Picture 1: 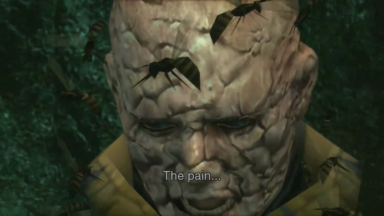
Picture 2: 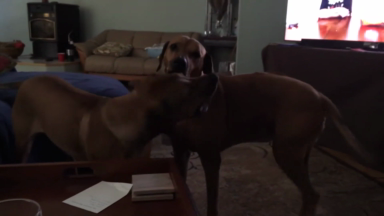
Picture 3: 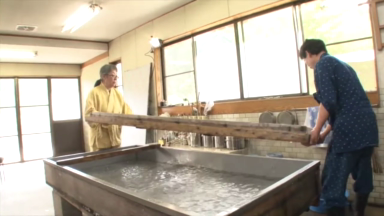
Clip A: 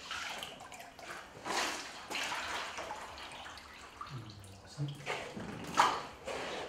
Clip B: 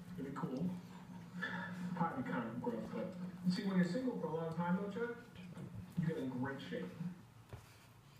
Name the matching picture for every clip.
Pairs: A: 3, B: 2